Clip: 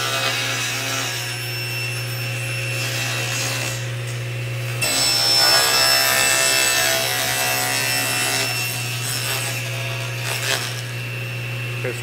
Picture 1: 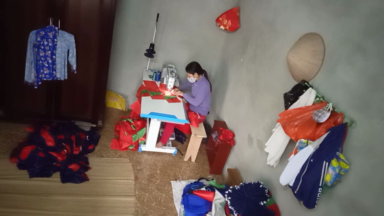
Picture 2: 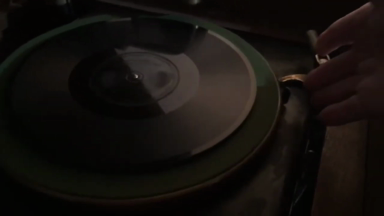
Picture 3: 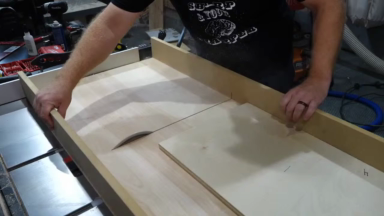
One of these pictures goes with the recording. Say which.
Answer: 3